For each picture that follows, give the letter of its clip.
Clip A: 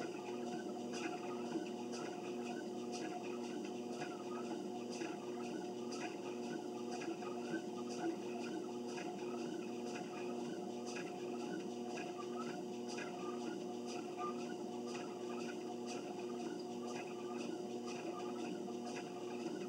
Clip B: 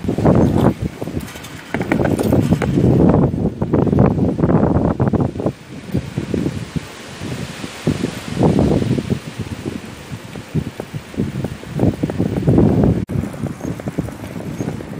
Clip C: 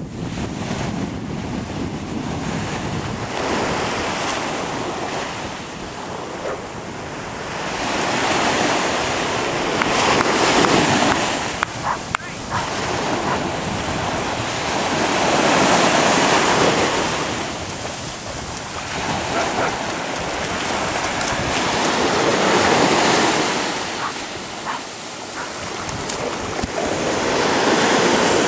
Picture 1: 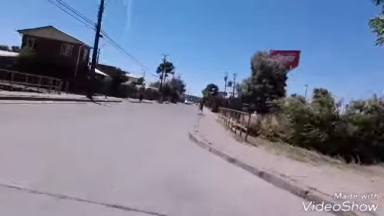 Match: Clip B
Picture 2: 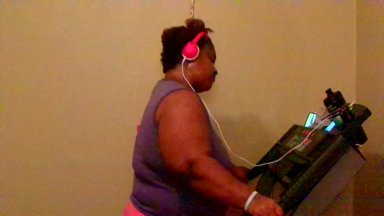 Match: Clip A